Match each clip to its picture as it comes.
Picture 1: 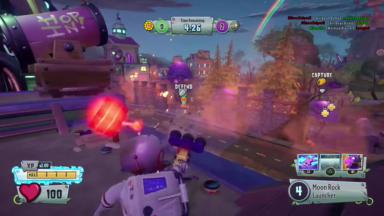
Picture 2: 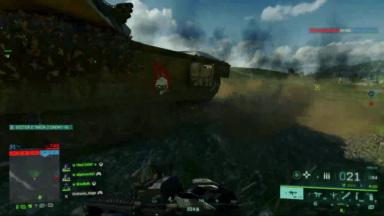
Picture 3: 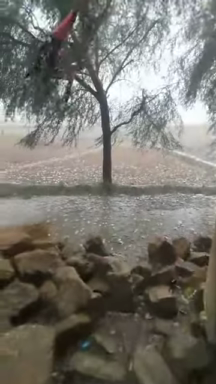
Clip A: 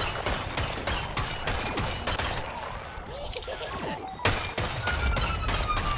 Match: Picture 1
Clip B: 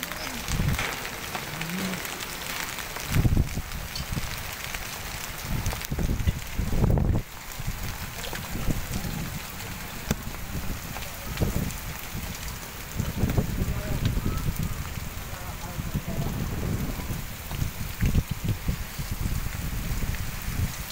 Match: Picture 3